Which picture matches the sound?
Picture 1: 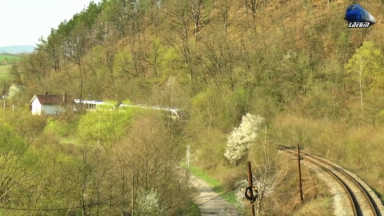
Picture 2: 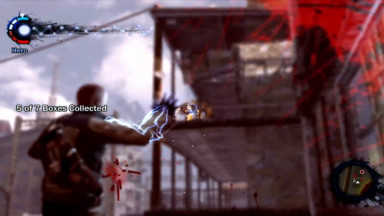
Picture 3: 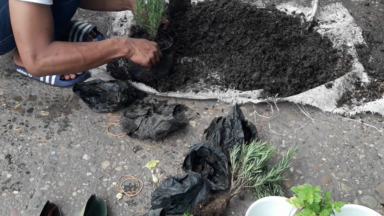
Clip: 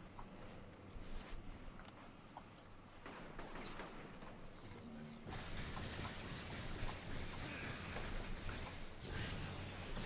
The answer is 2